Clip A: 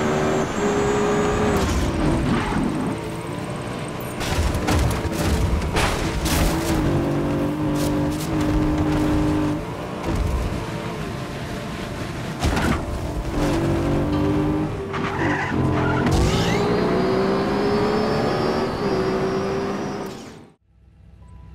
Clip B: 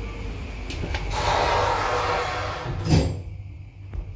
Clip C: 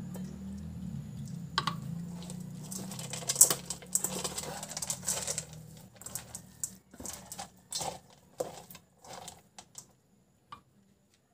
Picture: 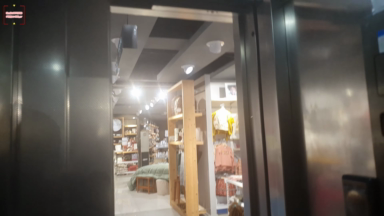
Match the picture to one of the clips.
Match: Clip B